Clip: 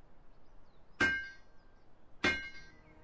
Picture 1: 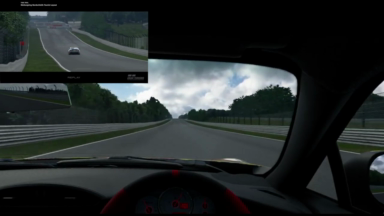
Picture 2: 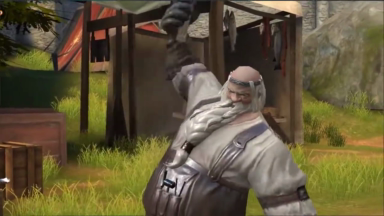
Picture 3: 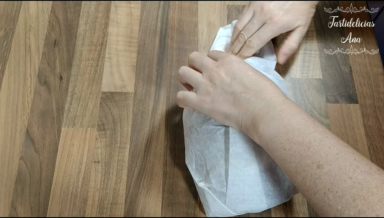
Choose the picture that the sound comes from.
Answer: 2